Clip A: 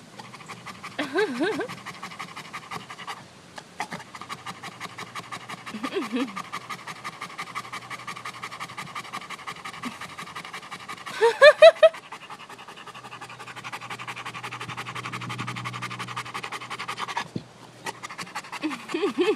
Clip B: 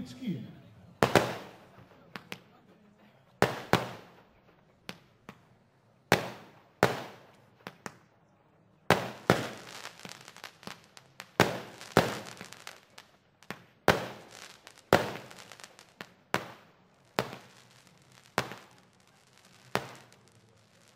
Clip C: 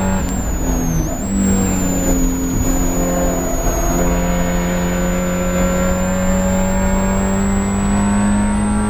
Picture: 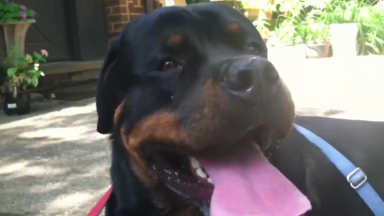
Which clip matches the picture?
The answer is A